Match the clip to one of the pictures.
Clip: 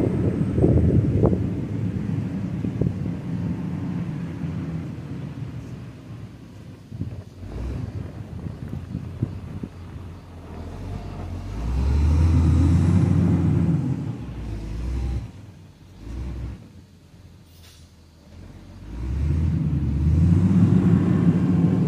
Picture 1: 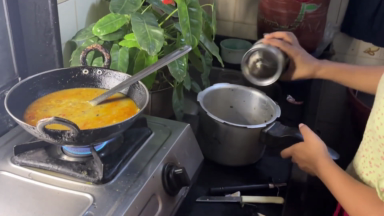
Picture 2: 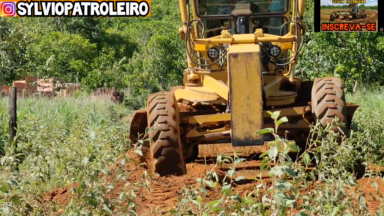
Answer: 2